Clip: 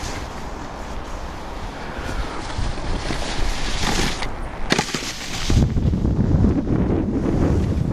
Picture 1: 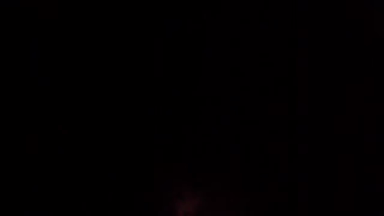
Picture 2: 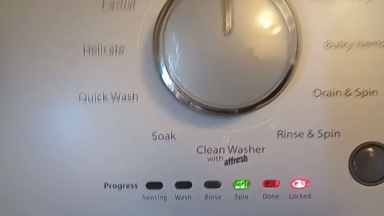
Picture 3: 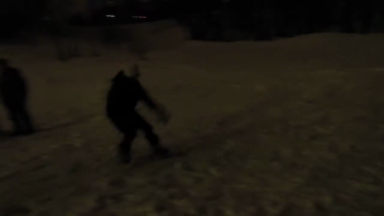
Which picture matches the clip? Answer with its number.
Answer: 3